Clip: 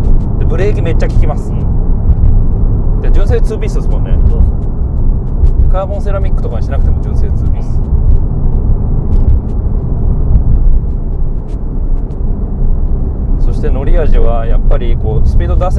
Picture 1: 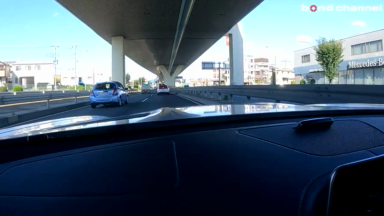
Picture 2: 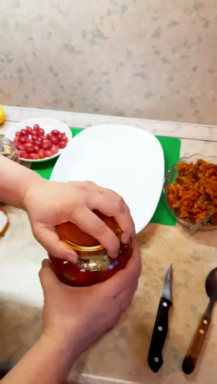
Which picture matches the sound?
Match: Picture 1